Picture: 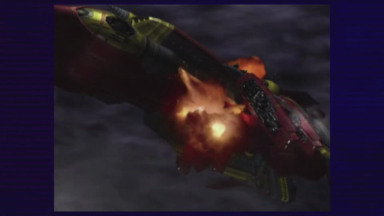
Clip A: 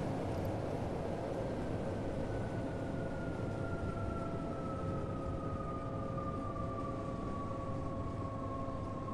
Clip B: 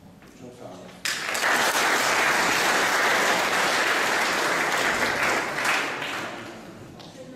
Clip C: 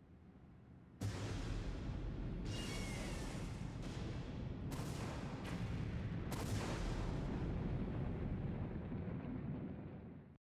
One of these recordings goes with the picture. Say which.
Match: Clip C